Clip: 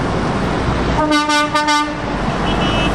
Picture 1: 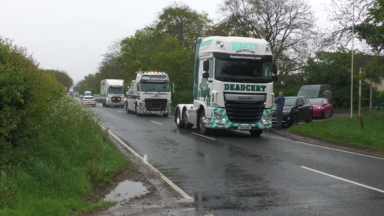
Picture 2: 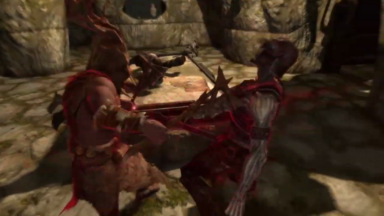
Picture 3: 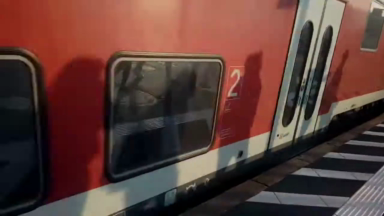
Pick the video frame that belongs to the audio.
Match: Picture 1